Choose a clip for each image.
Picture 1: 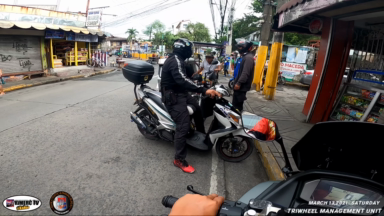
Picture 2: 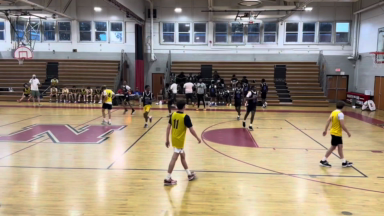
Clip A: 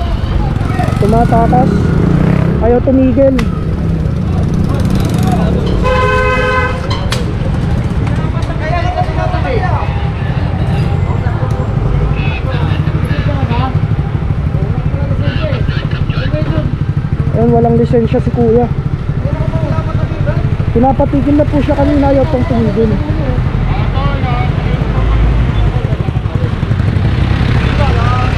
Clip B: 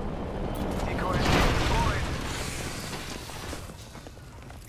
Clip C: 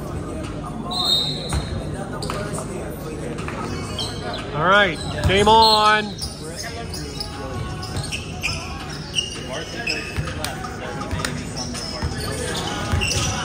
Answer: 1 A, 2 C